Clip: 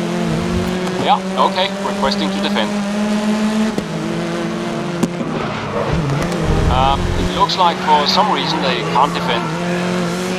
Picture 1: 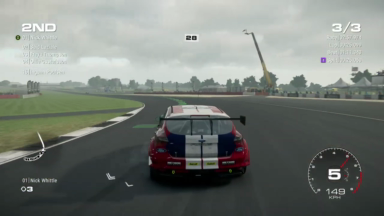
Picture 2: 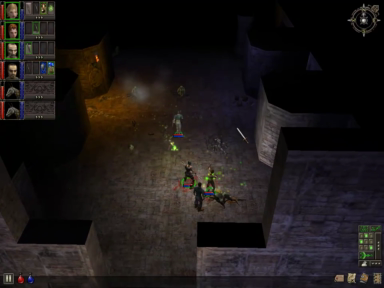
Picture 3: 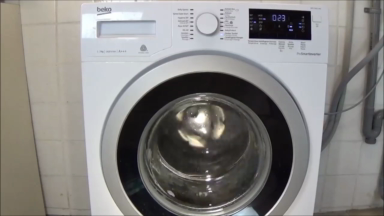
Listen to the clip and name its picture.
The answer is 1